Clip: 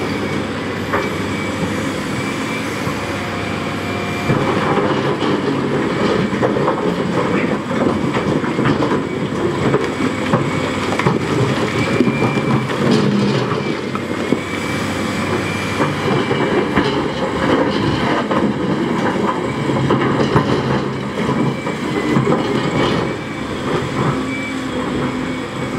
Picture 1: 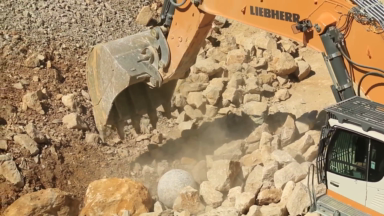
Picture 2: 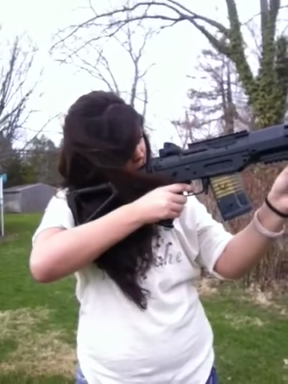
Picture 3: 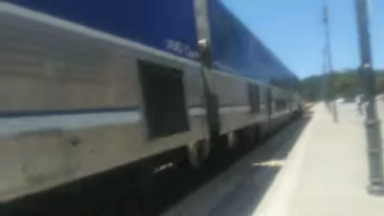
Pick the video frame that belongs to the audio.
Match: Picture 1